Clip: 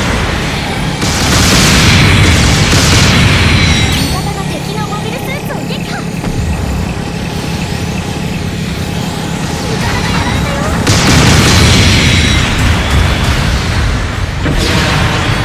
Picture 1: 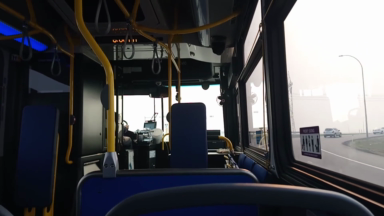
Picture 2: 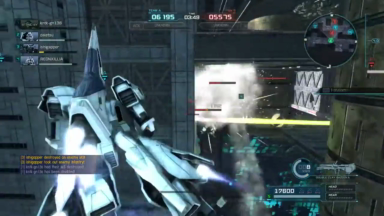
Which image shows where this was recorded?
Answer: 2